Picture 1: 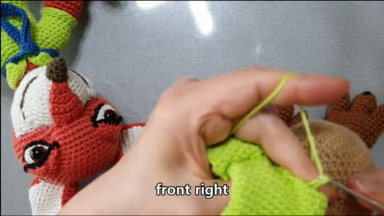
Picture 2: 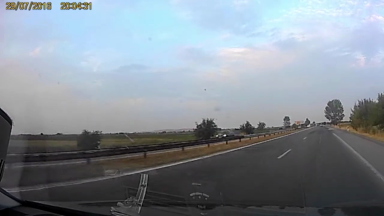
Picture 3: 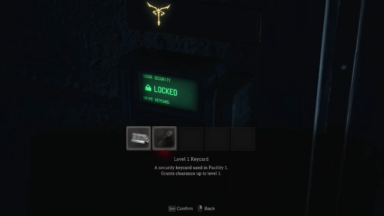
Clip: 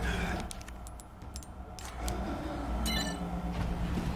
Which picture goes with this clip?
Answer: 3